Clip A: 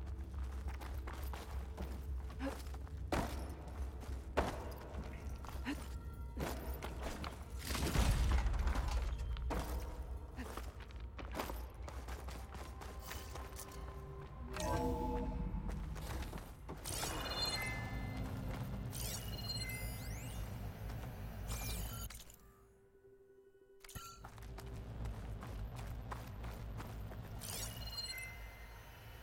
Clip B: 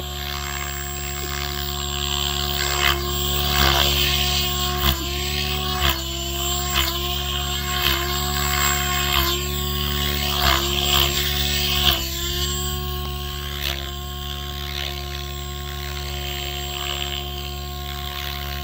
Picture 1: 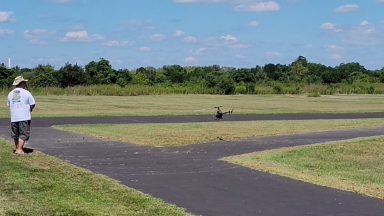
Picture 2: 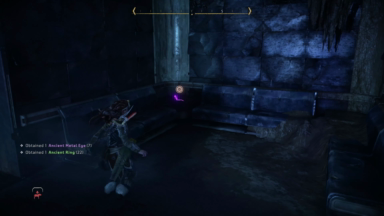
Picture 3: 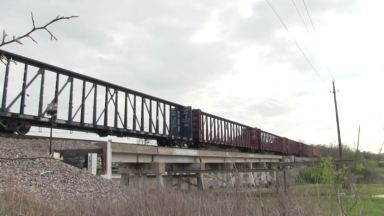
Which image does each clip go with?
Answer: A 2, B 1